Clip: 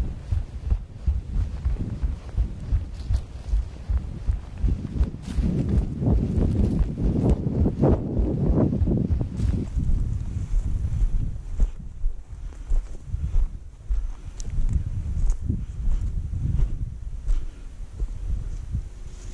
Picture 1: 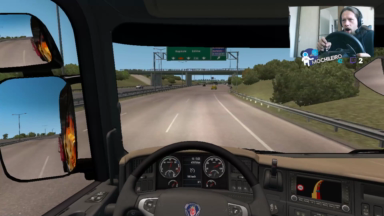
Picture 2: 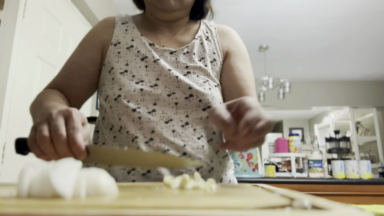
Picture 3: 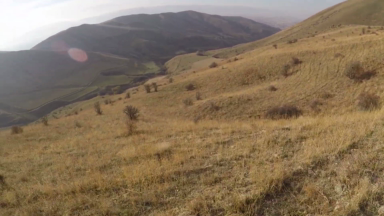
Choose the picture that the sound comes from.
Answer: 3